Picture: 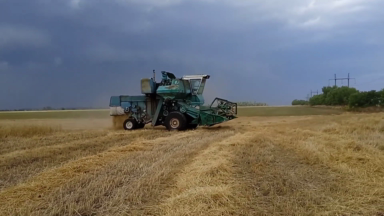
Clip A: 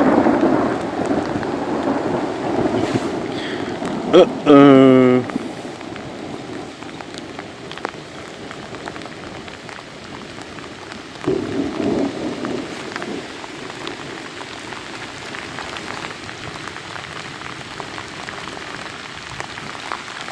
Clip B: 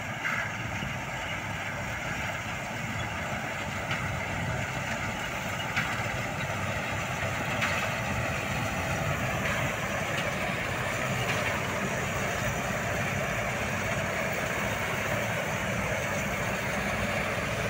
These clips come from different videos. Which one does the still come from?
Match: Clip B